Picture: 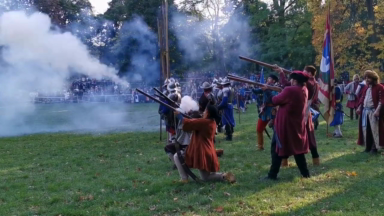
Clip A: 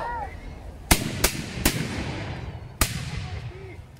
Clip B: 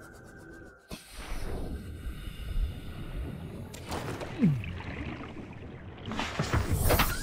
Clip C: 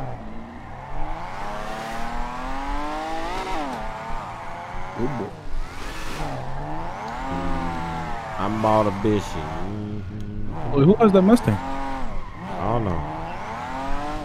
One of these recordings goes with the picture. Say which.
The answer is A